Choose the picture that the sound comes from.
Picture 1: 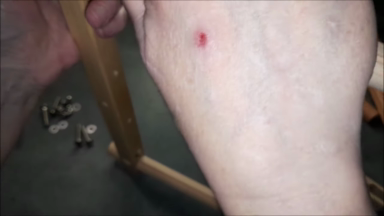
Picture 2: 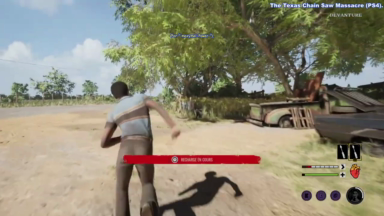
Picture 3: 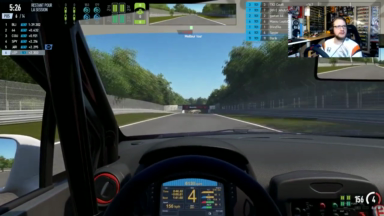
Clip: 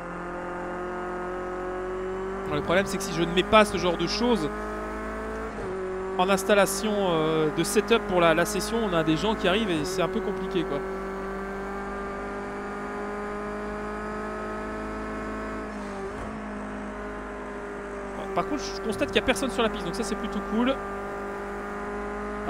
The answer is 3